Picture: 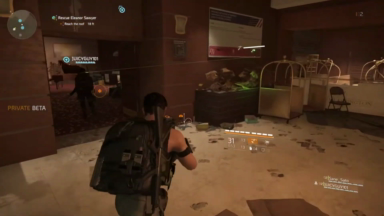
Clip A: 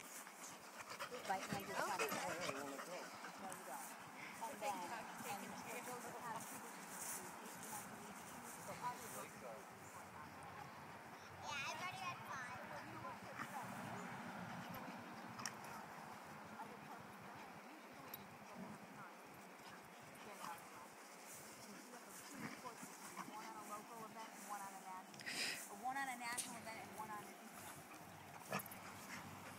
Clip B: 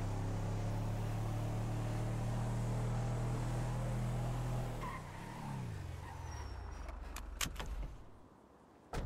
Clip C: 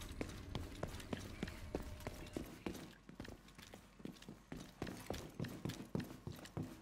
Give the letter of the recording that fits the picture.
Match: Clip C